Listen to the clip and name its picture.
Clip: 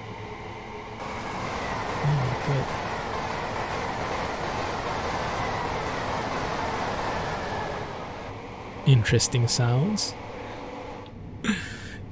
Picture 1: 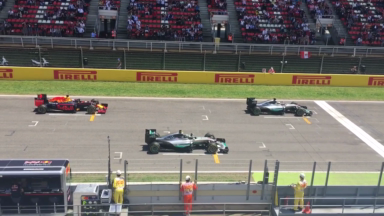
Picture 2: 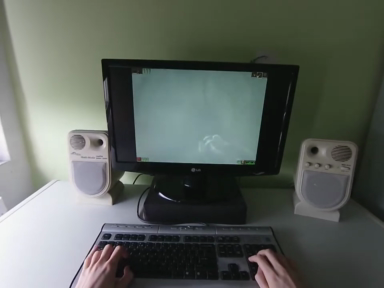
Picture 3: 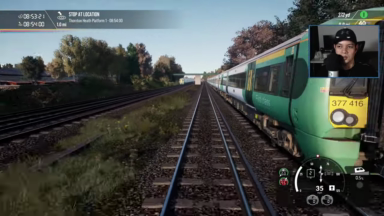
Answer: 3